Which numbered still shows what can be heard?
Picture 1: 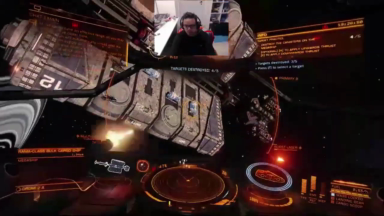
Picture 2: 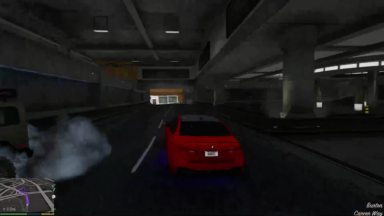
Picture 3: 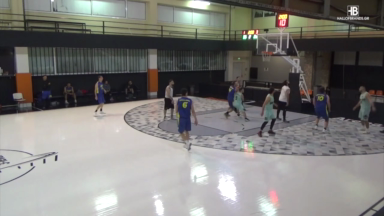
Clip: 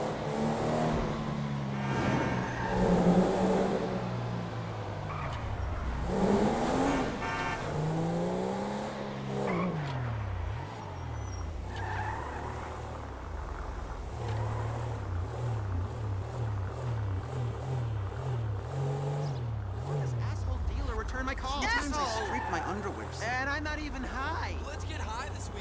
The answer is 2